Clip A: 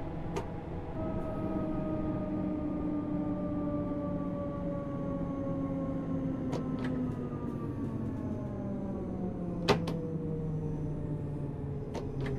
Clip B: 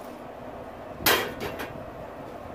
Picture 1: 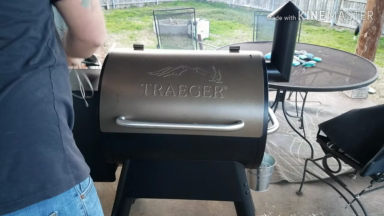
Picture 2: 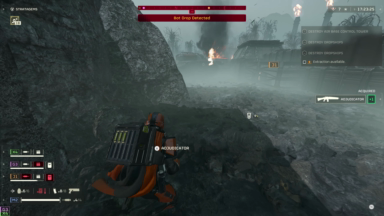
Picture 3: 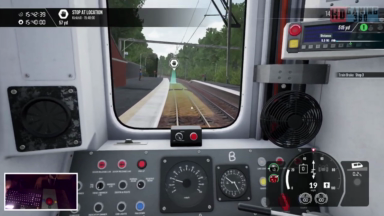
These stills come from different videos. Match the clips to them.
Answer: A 3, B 1